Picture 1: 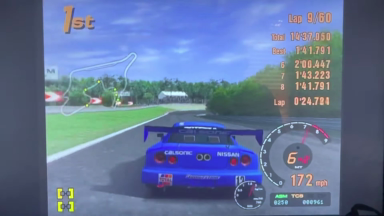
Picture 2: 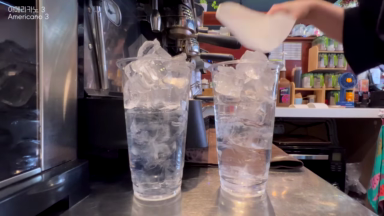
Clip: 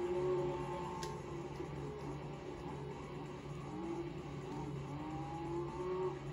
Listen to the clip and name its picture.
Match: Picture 1